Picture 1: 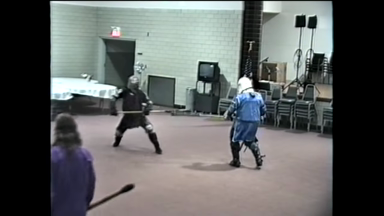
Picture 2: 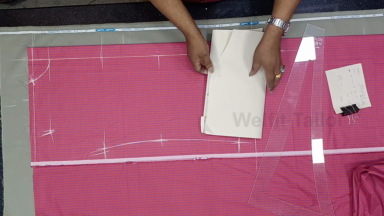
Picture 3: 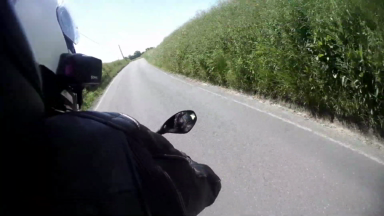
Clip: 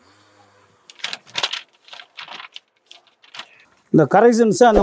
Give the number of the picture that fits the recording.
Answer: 2